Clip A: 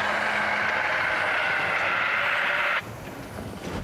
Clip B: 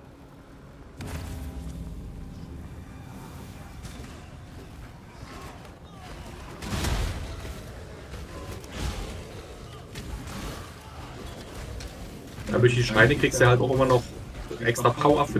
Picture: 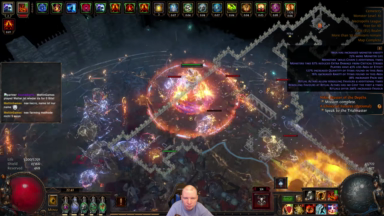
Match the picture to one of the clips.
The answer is B